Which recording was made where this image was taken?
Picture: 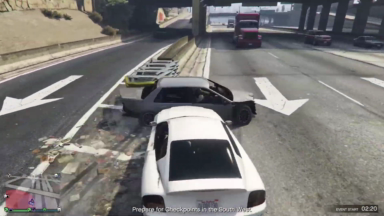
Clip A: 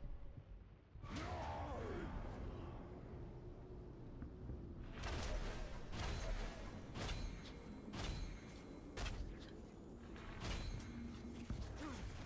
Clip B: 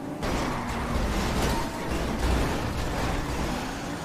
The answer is B